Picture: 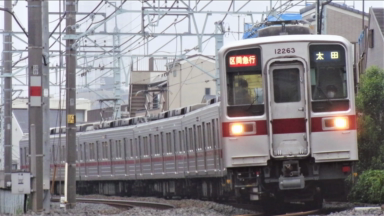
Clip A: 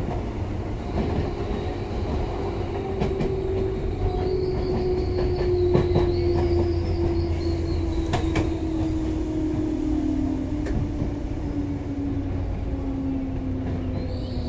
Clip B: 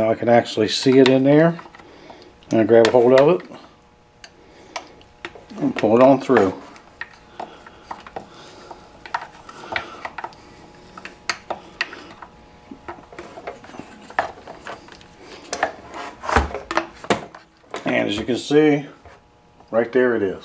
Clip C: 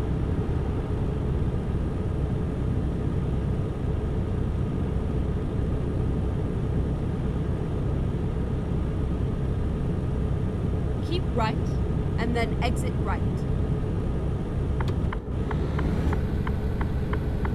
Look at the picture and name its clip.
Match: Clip A